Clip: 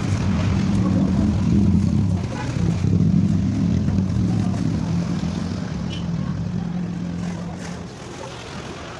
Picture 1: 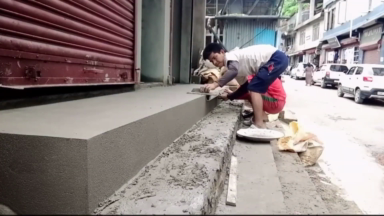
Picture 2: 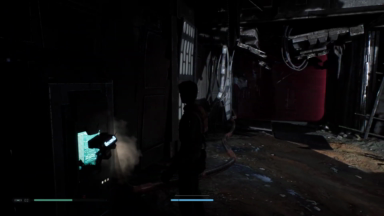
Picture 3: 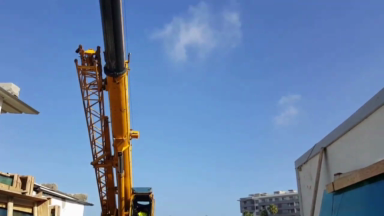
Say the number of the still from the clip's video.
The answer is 1